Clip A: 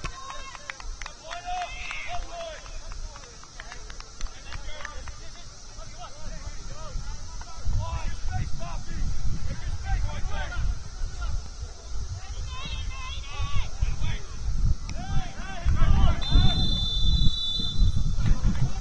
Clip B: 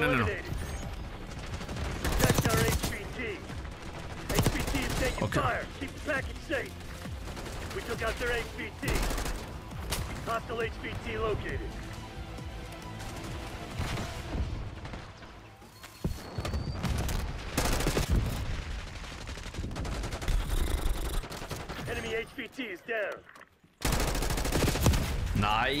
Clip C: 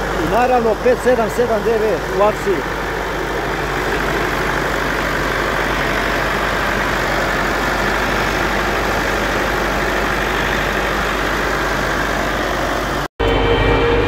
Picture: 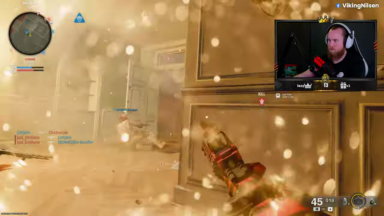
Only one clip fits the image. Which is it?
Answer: B